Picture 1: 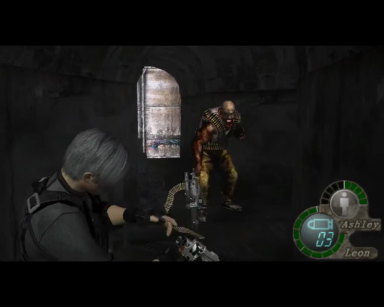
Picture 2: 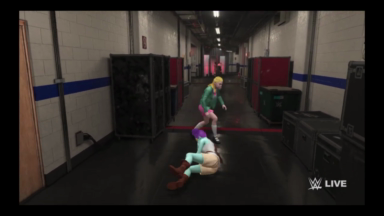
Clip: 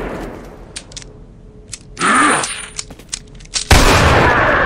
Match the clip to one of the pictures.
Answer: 1